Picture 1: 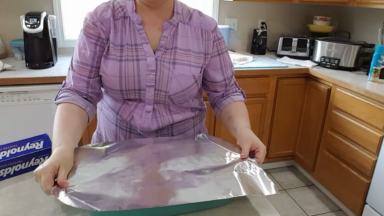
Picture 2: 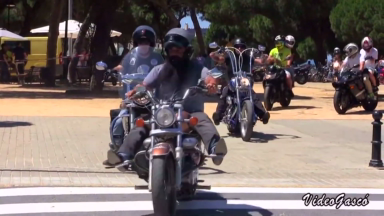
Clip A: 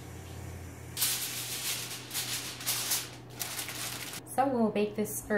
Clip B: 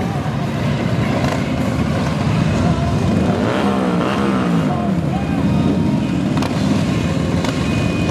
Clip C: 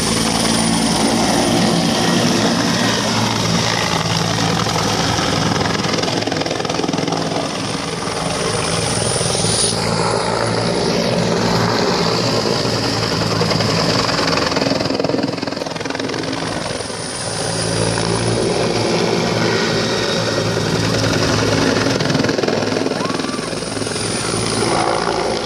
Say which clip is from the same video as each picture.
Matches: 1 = A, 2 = B